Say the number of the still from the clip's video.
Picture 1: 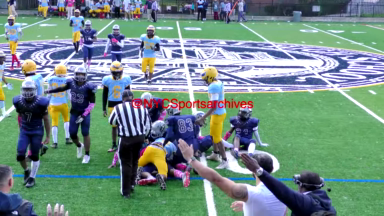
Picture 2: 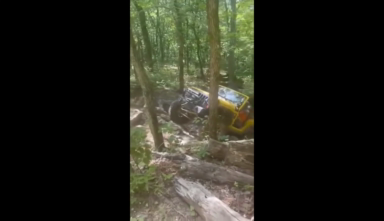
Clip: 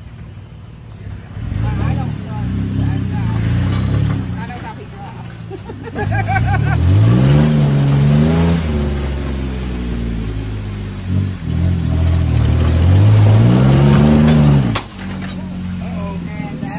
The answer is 2